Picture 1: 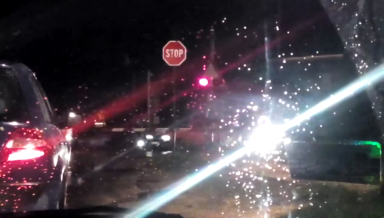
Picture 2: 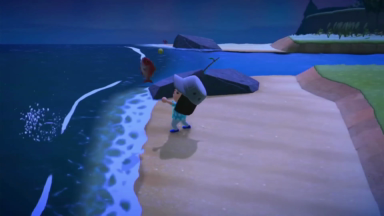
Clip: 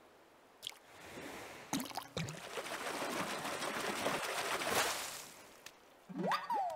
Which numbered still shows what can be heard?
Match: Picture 2